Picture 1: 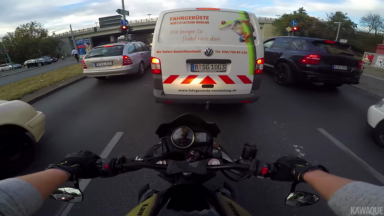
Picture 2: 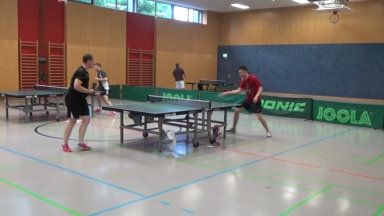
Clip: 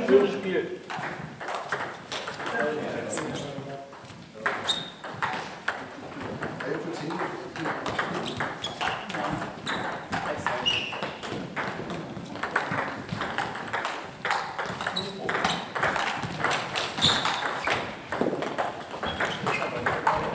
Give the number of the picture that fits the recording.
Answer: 2